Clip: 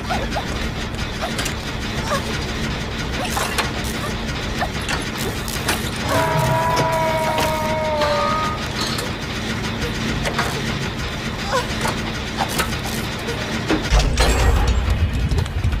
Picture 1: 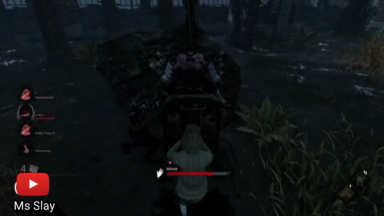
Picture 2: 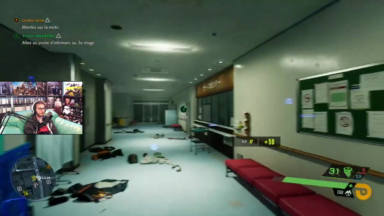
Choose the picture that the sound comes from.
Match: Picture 1